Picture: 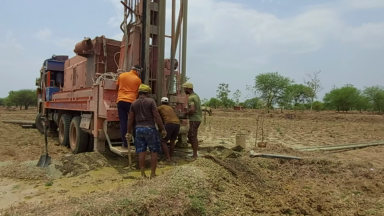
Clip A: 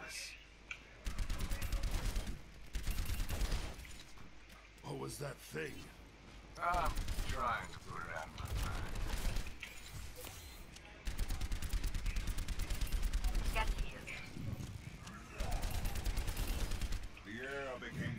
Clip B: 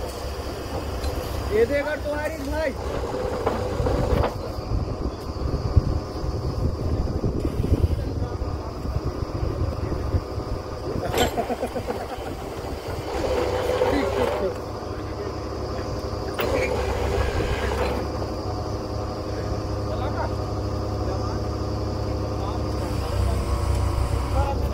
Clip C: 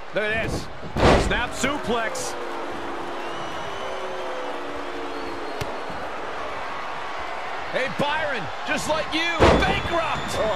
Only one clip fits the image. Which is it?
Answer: B